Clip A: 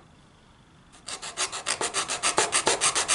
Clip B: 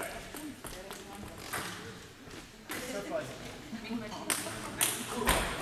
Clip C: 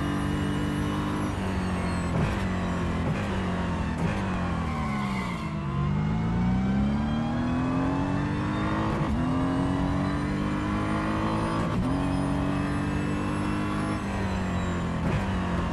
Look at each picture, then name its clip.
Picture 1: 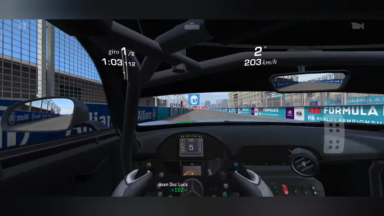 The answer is C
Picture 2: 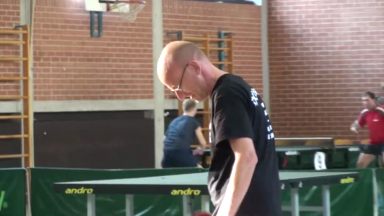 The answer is B